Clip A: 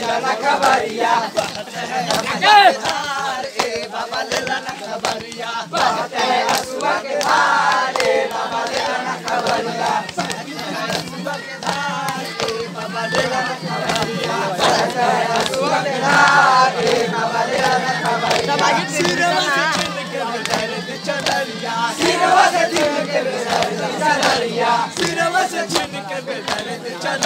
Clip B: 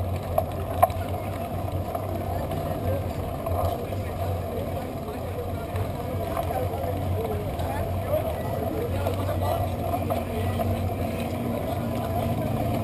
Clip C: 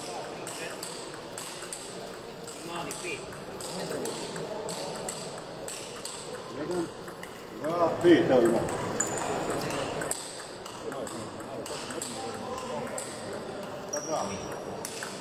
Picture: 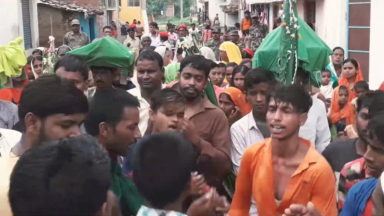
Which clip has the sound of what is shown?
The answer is A